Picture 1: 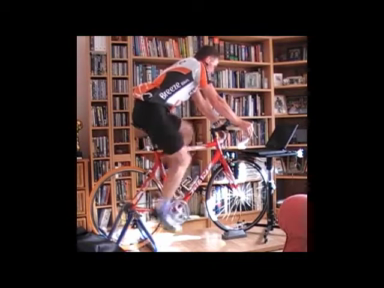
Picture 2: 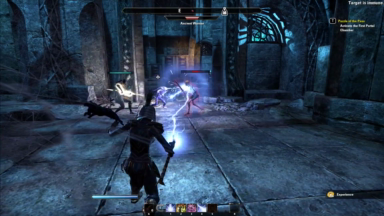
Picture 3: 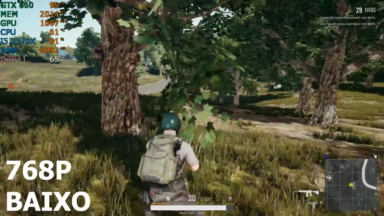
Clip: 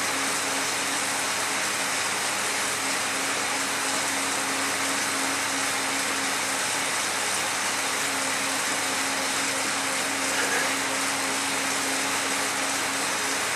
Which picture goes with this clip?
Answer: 1